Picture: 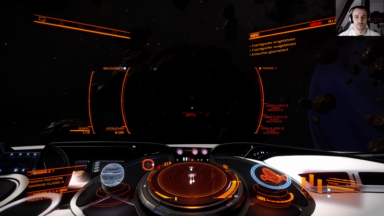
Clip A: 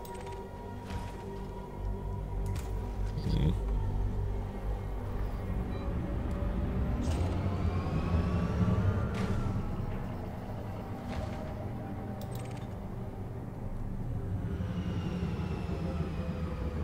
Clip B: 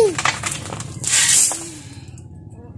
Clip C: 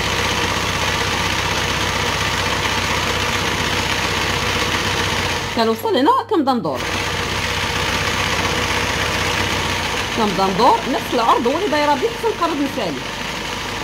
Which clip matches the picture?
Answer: A